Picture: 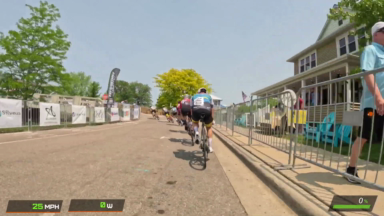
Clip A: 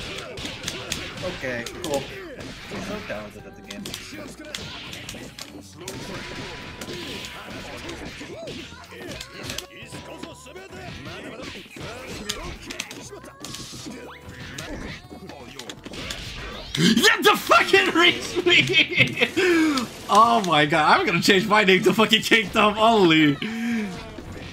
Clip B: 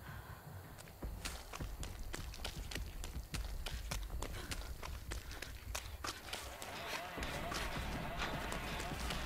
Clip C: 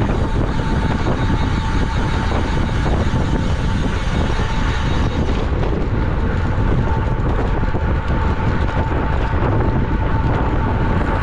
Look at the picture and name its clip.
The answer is C